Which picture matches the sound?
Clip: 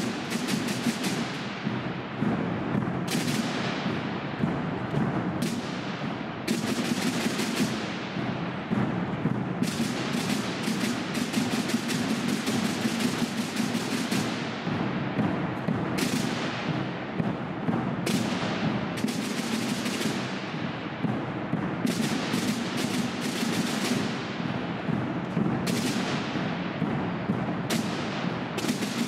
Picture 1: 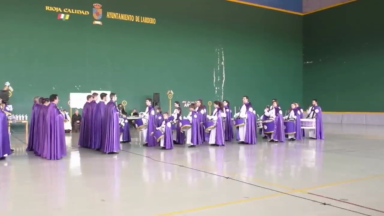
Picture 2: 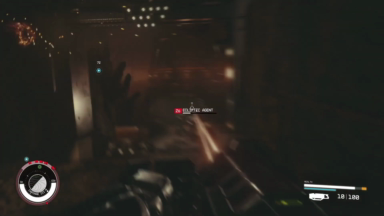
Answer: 1